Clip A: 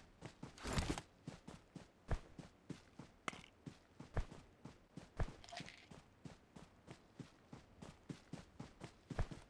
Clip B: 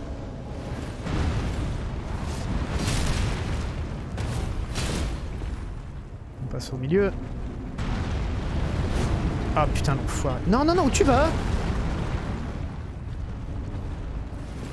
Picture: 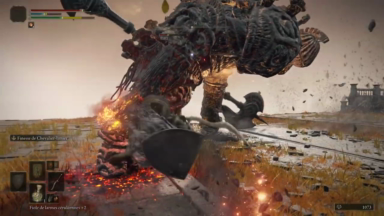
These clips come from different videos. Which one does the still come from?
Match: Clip B